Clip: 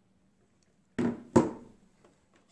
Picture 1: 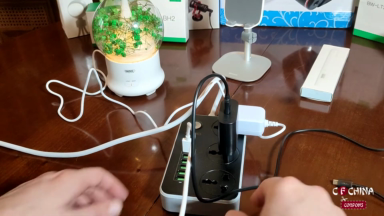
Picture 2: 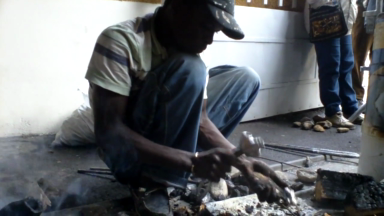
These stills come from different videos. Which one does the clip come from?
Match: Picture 1